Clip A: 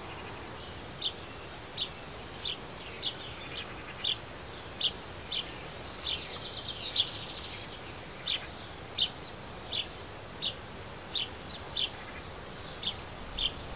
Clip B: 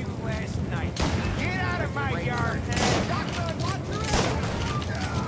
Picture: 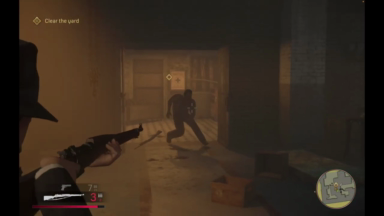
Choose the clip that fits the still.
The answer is B